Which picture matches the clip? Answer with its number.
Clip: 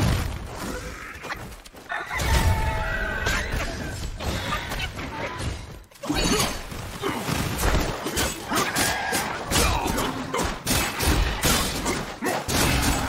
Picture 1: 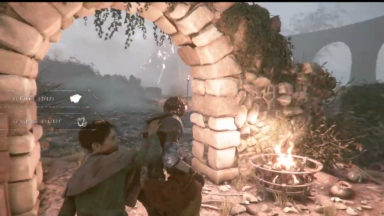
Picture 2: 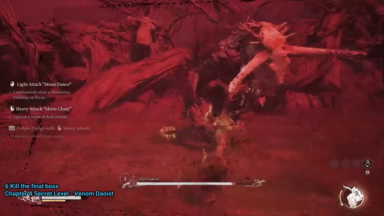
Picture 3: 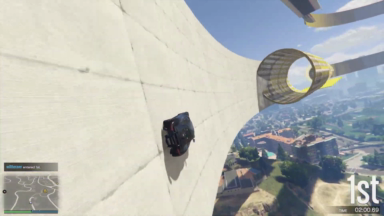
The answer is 2